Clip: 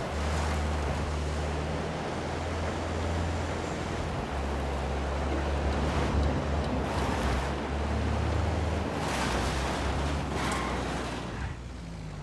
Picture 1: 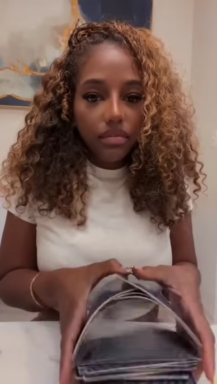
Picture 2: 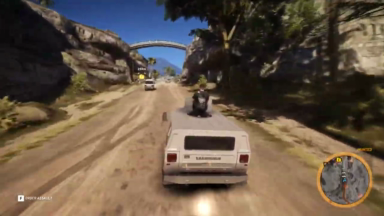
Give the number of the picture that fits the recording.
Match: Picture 2